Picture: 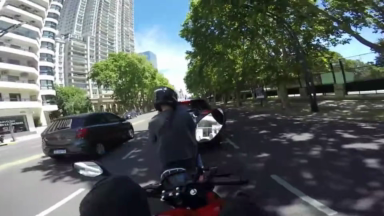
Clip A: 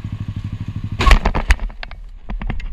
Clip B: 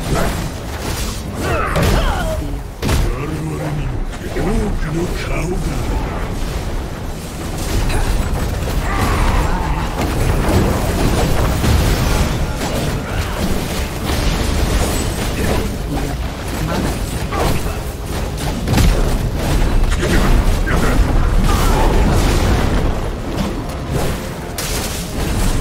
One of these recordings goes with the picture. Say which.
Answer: A